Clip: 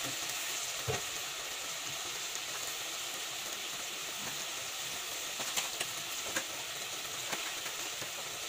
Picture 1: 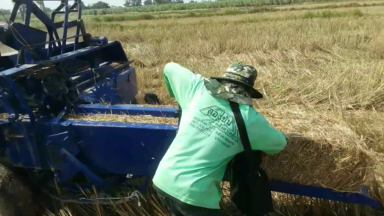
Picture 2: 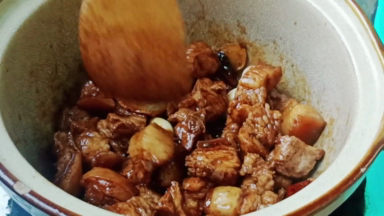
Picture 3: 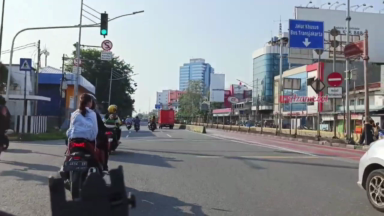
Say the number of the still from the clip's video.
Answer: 2